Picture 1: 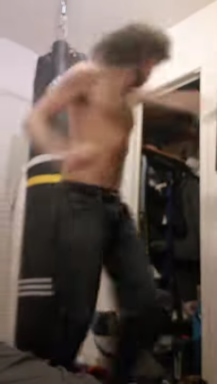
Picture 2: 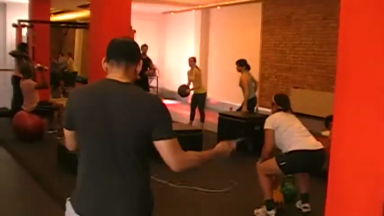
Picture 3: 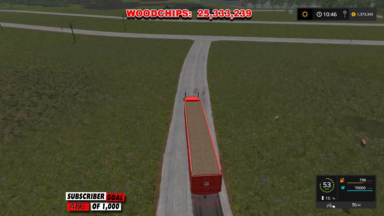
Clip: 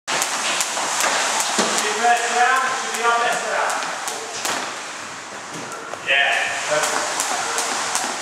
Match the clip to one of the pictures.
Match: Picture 2